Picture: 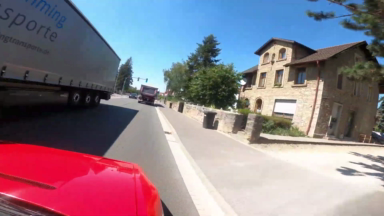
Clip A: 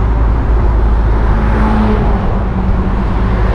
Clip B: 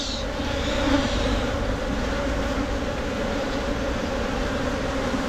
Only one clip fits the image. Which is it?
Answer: A